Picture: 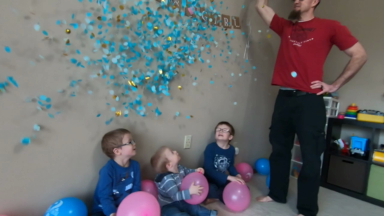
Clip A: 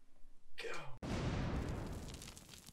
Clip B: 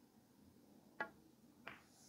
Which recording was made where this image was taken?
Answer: A